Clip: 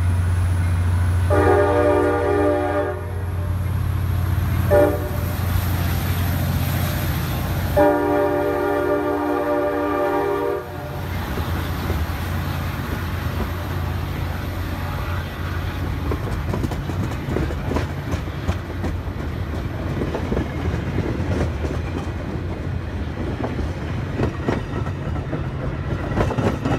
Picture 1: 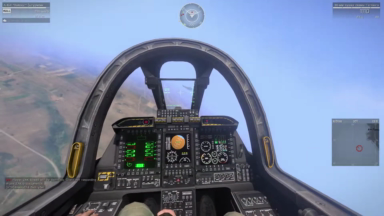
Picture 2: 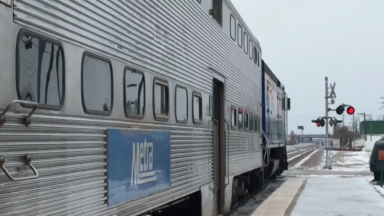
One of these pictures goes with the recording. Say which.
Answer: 2